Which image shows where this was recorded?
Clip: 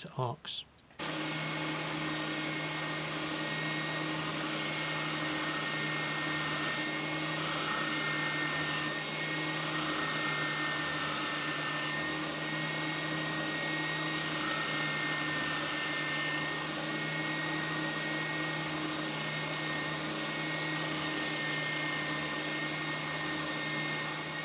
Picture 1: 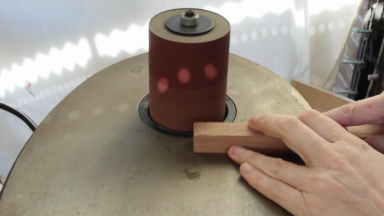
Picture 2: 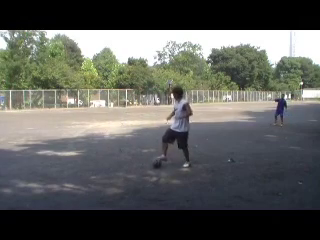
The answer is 1